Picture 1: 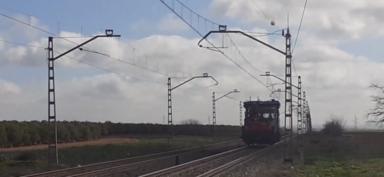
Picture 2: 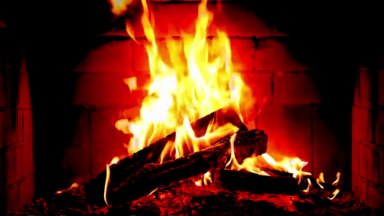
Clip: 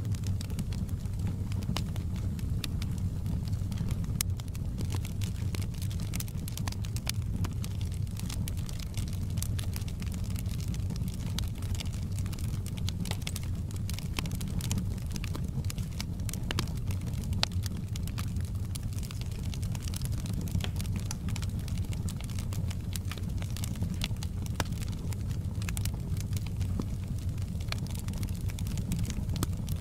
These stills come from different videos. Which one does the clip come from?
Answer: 2